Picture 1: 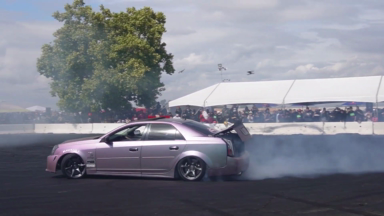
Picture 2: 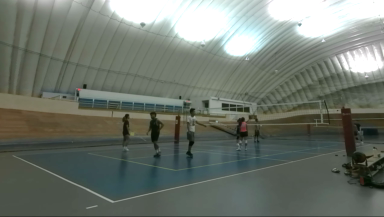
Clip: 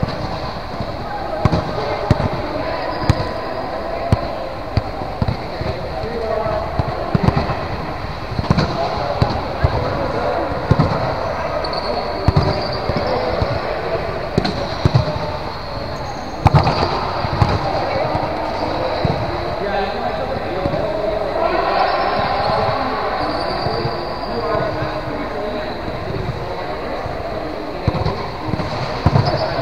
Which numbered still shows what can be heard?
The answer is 2